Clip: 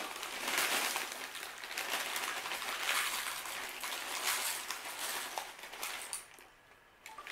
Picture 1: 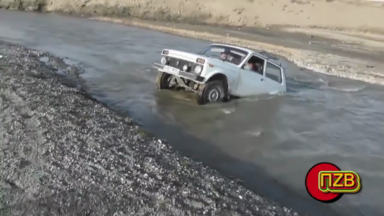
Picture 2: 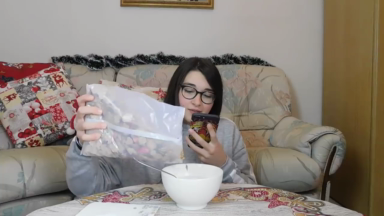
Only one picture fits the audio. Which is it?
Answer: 2